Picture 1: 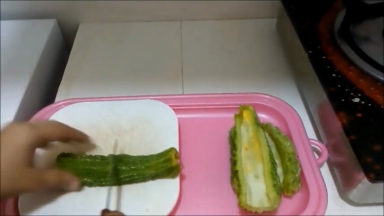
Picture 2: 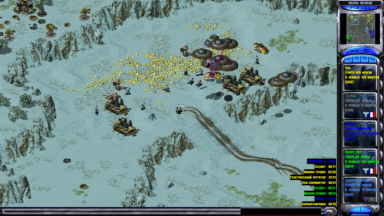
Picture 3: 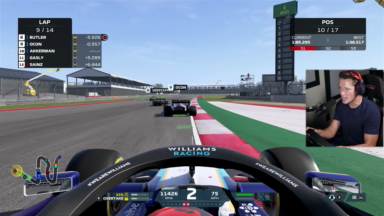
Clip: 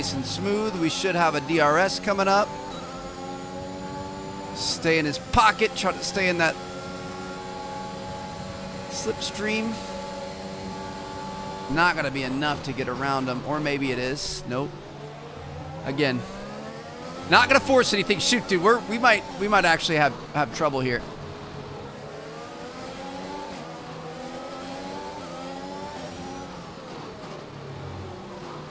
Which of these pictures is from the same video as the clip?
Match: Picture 3